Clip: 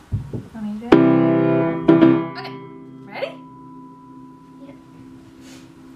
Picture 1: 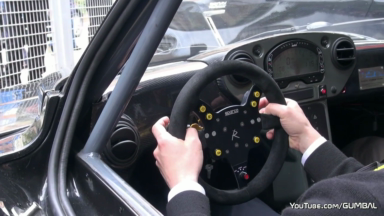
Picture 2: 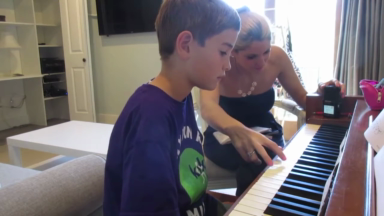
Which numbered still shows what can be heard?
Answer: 2